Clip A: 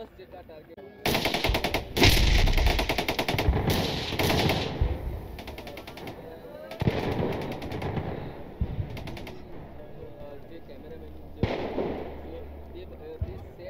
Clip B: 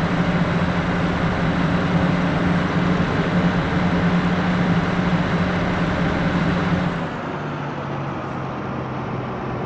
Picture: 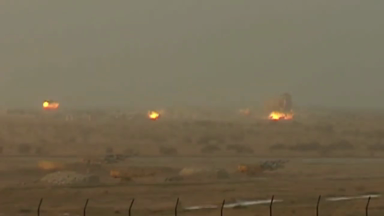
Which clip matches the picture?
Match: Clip A